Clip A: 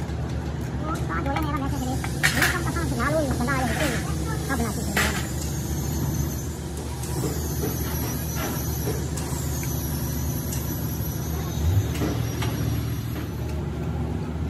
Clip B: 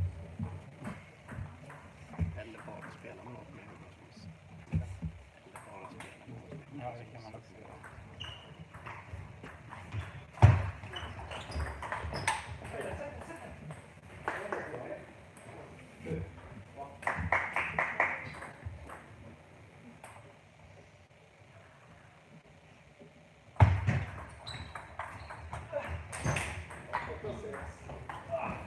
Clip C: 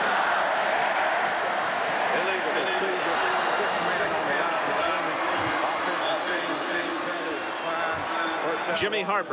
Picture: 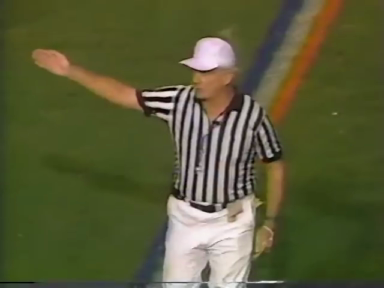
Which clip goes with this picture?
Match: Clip C